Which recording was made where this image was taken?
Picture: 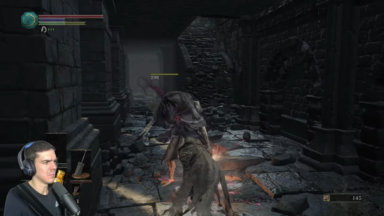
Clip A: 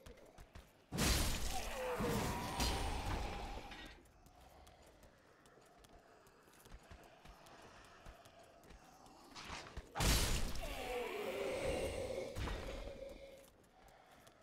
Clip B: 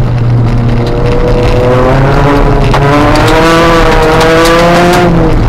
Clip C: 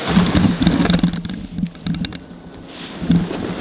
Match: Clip A